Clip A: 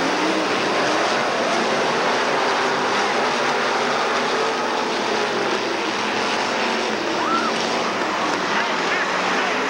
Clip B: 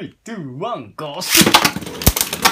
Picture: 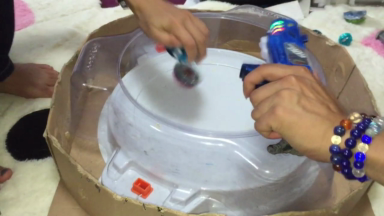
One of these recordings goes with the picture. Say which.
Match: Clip B